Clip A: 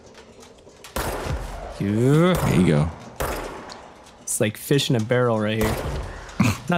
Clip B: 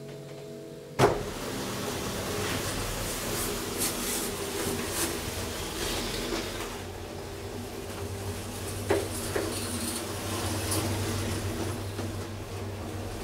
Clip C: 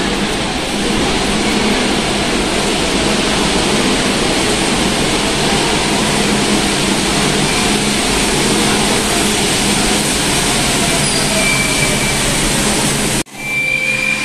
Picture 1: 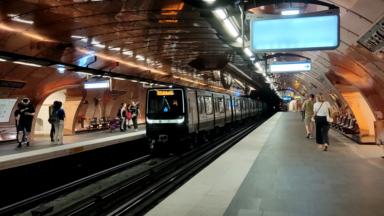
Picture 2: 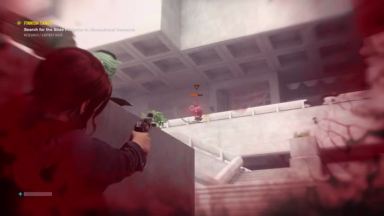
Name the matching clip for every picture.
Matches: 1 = C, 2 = A